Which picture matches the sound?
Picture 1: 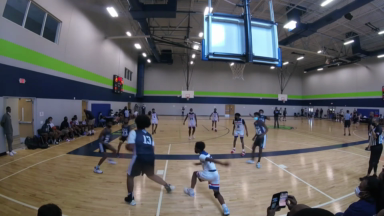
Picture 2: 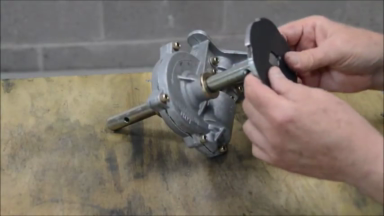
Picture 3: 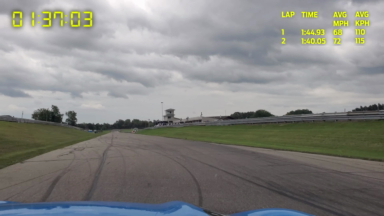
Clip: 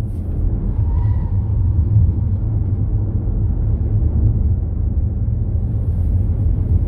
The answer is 3